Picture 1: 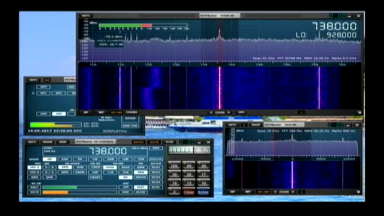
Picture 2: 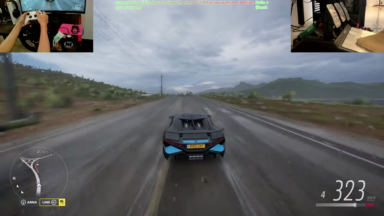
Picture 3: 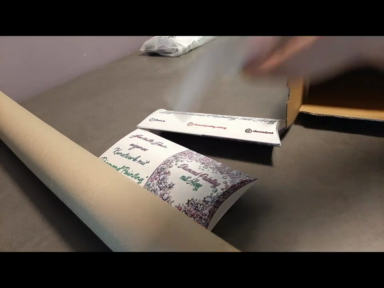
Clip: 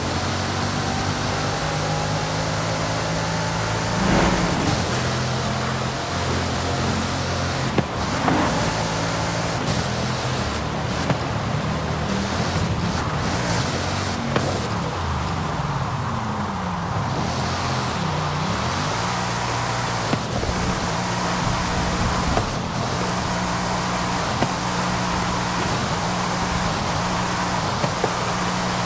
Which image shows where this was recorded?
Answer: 2